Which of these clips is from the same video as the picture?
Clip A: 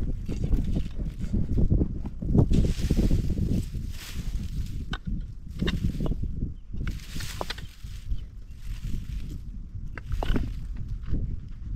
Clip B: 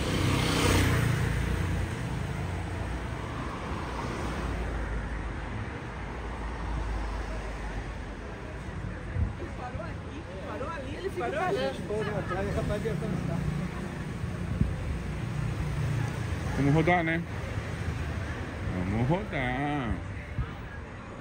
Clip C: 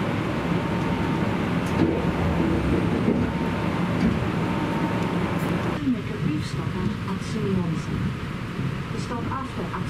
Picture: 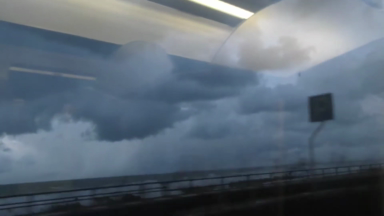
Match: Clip C